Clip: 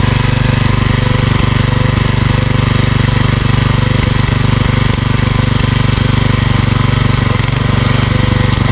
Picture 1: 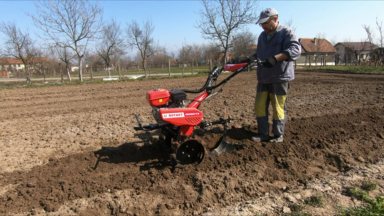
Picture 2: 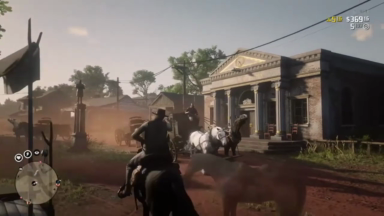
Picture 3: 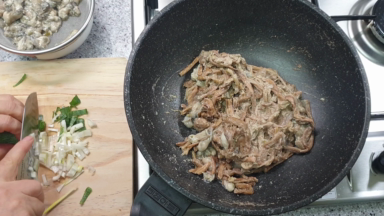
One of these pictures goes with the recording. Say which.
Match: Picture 1